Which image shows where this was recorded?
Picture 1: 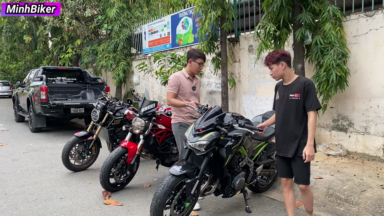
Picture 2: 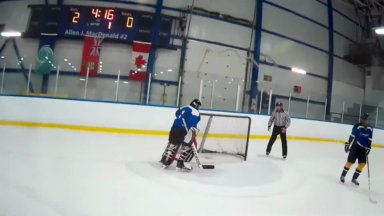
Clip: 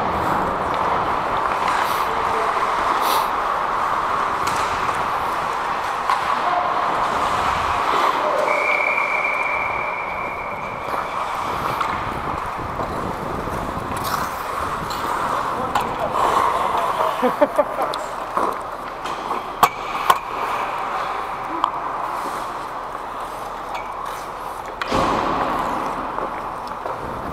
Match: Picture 2